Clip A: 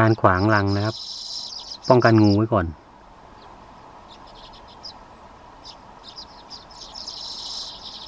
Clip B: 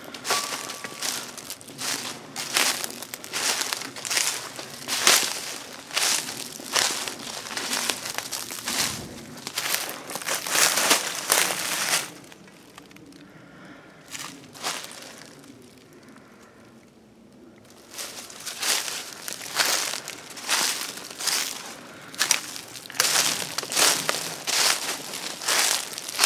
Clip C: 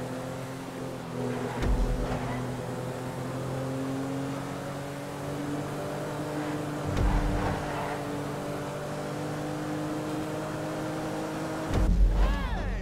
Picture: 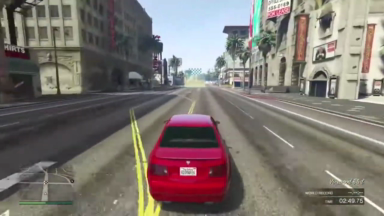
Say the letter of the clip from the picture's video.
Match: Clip C